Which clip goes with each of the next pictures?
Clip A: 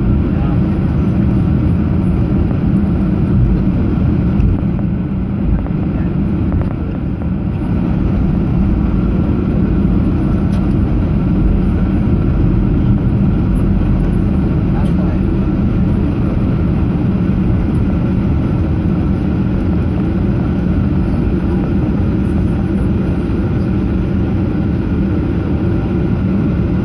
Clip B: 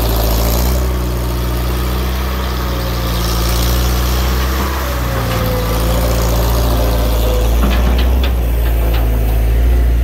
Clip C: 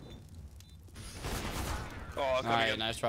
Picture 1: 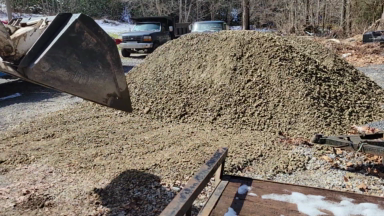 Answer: B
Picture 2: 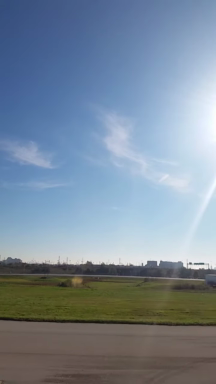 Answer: A